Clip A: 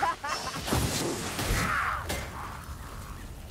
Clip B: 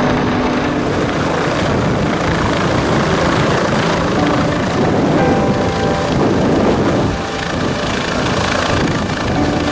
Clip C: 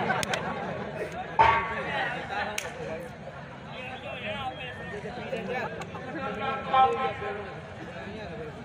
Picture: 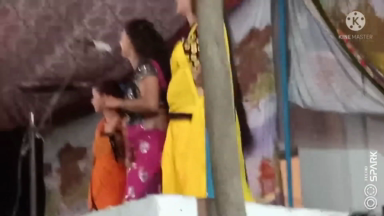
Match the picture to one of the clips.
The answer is C